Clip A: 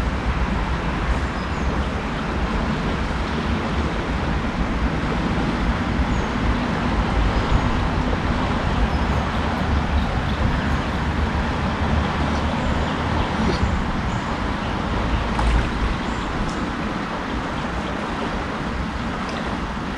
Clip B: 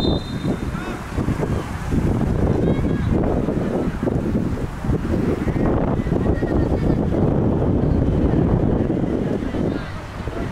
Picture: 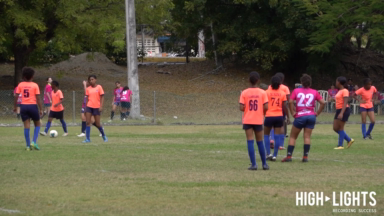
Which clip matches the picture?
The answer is B